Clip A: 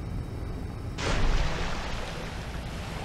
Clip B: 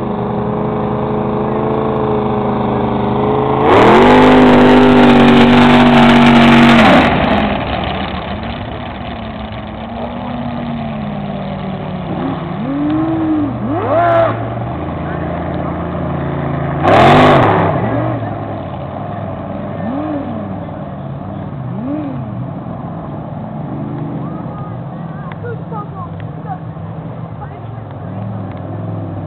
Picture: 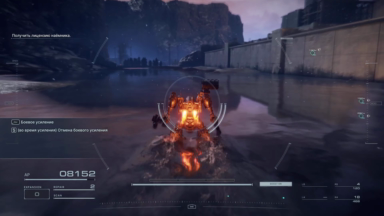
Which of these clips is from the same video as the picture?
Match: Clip A